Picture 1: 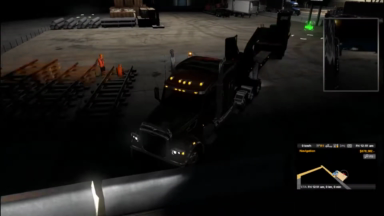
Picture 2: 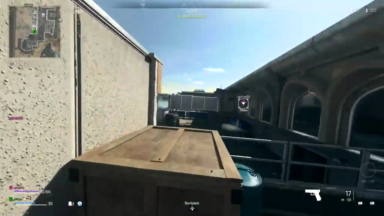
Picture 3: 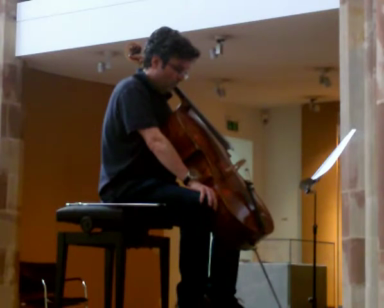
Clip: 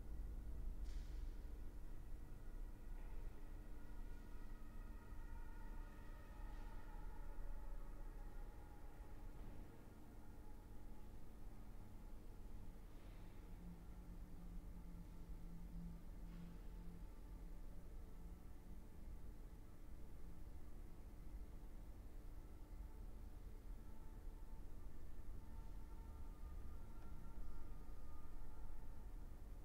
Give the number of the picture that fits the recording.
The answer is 3